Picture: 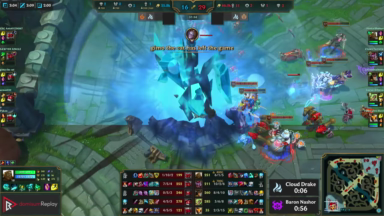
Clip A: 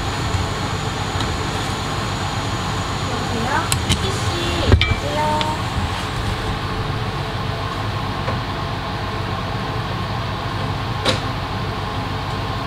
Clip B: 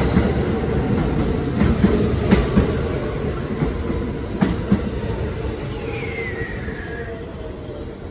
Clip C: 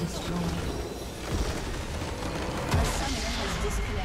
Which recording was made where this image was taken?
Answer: C